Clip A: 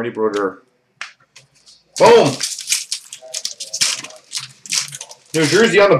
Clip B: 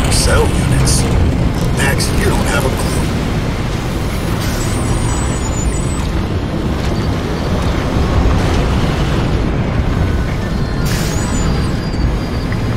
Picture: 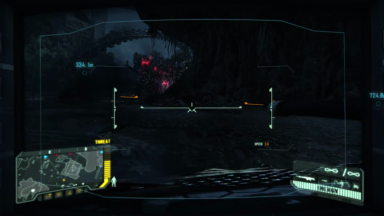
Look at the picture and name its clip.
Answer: B